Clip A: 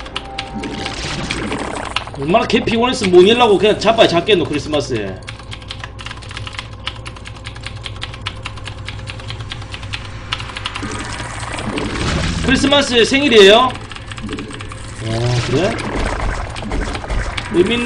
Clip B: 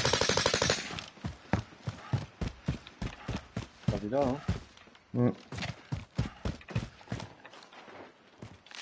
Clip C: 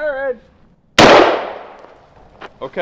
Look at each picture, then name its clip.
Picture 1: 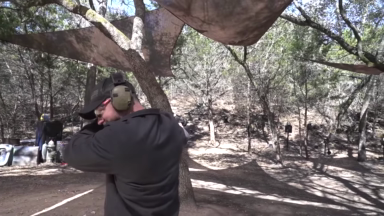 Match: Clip C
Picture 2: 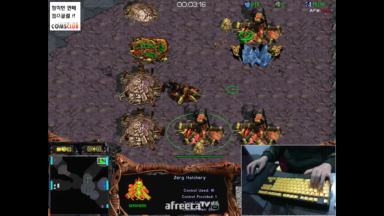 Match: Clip A